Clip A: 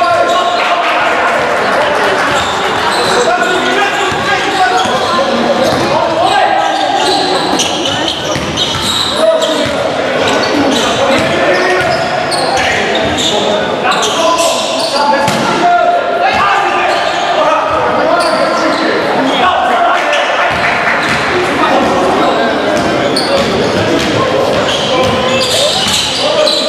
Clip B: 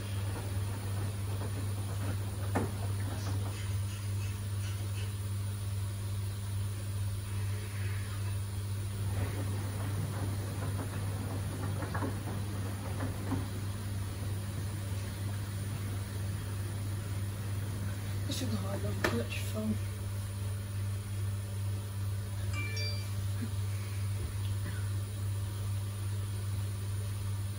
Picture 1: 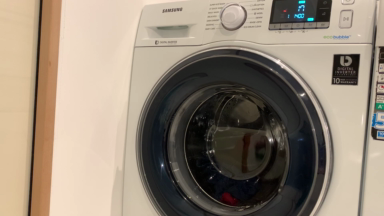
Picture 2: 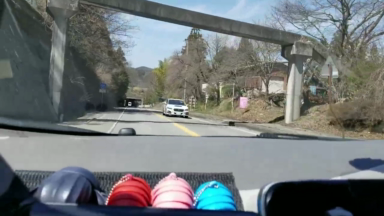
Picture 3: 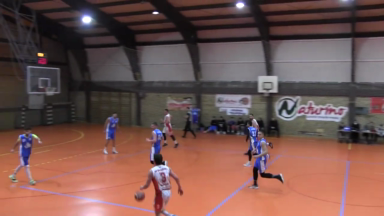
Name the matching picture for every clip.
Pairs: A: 3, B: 1